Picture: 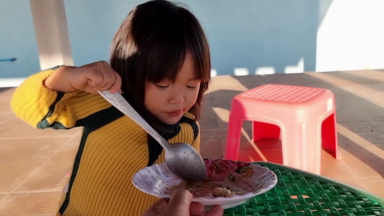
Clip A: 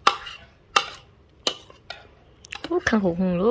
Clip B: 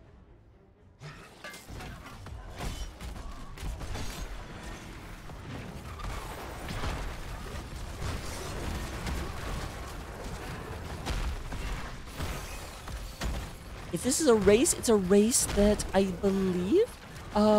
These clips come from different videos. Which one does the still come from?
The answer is A